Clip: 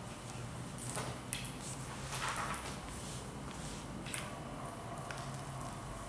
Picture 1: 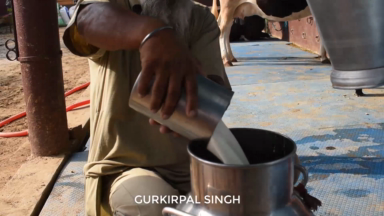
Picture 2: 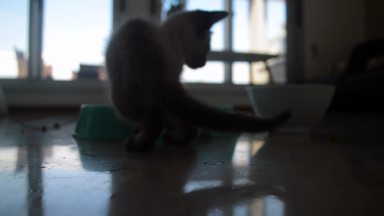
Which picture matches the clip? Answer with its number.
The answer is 2